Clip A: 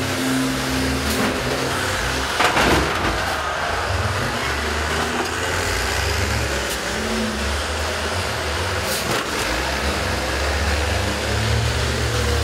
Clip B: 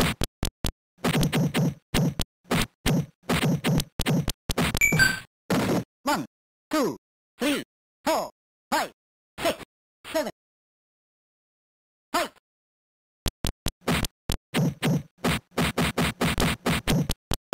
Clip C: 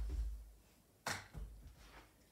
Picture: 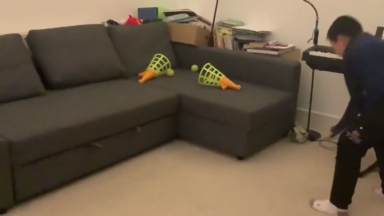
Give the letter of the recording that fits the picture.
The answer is C